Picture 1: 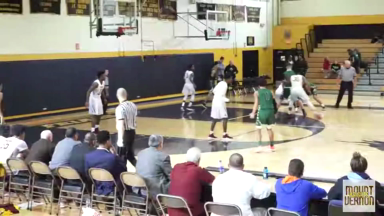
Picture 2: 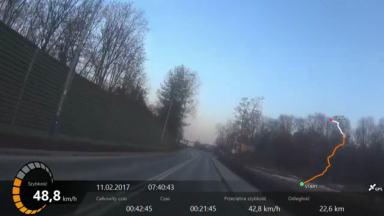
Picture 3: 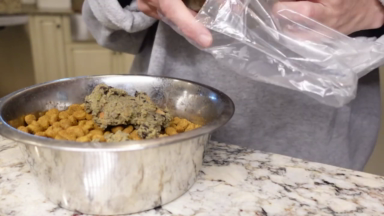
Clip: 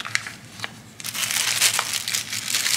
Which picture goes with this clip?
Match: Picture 3